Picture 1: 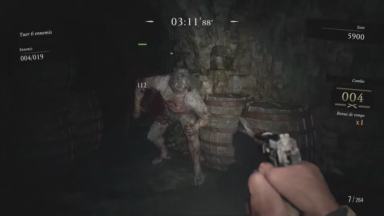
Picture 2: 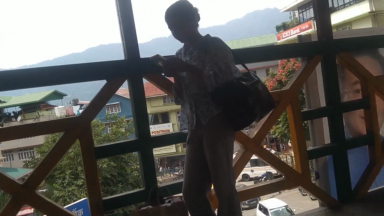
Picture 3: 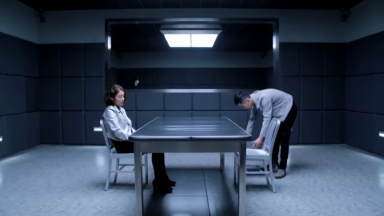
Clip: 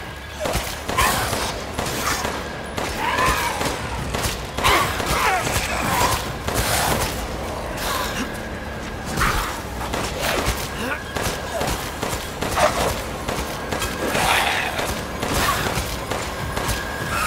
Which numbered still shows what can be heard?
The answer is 1